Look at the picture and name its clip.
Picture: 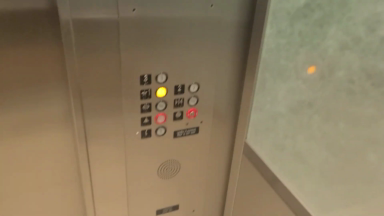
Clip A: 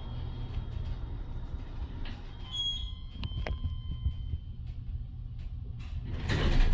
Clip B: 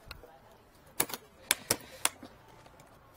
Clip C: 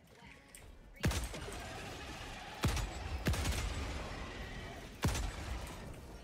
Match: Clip A